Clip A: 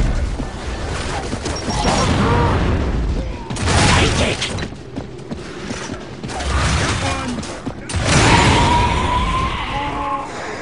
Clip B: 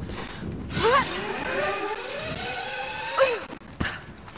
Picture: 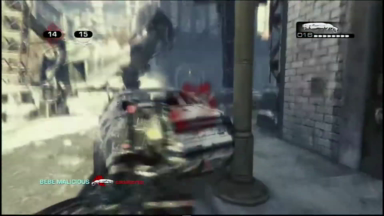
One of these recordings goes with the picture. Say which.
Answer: A